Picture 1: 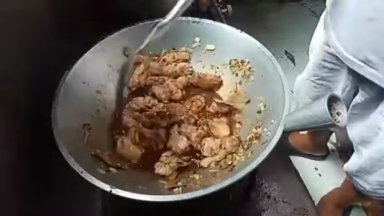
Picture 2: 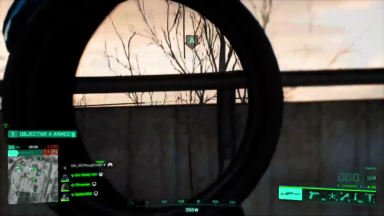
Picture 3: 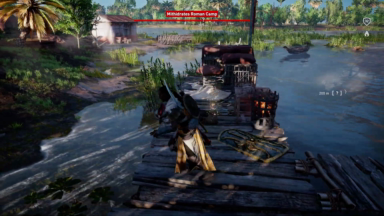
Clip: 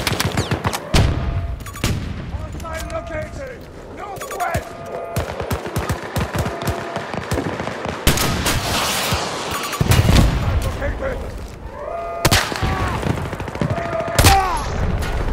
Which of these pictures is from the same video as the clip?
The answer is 2